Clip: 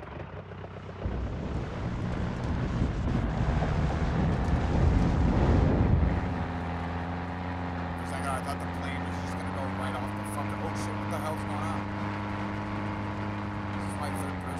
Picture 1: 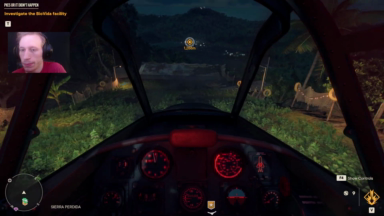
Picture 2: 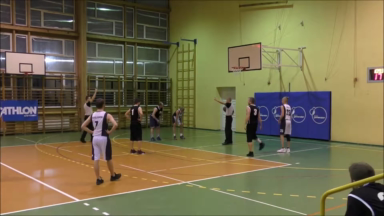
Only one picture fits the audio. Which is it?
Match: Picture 1